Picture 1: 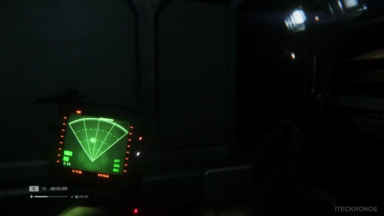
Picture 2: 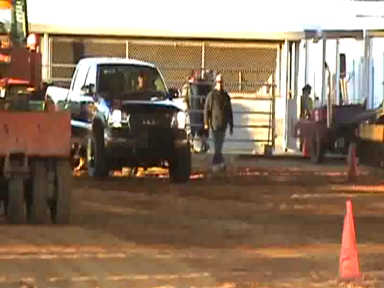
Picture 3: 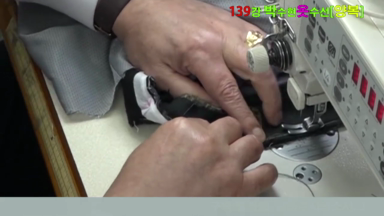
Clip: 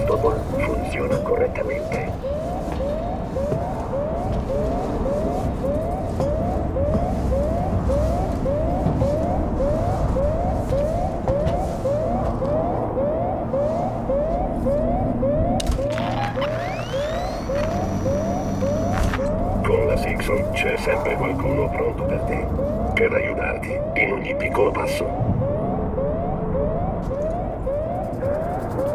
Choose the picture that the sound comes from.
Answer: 1